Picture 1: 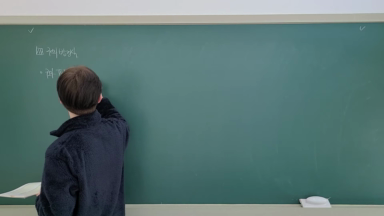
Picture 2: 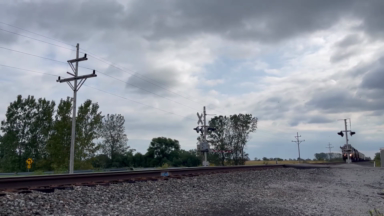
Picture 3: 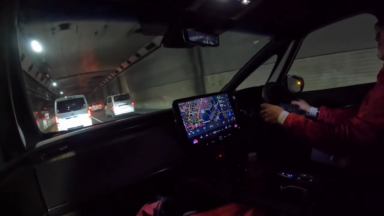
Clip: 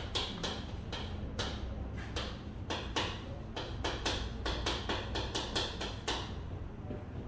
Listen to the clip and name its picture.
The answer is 1